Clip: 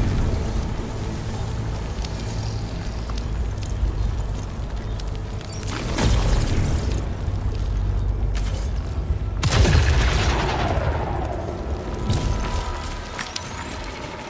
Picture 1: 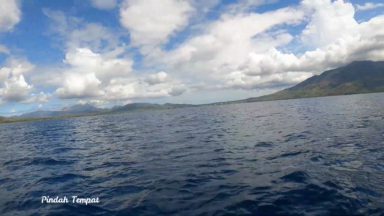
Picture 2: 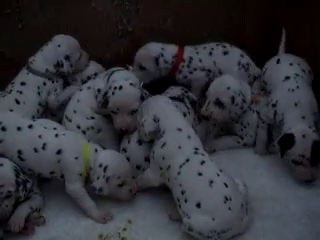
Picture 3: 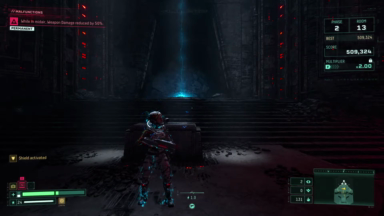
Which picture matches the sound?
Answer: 3